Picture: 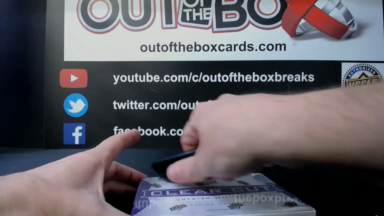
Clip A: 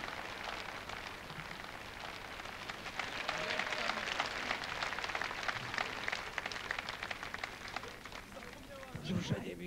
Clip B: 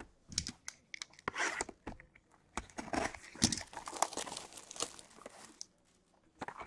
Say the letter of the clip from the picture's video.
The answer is B